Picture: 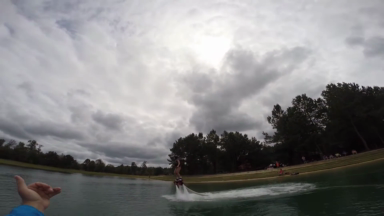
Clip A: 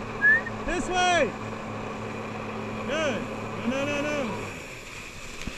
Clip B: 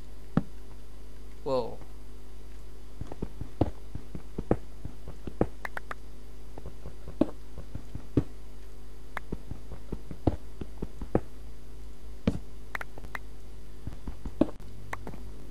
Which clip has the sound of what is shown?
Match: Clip A